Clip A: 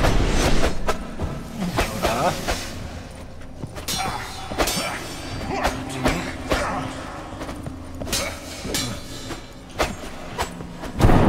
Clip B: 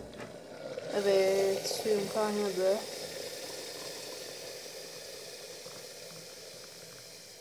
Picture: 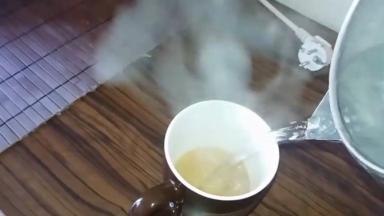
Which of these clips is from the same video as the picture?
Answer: B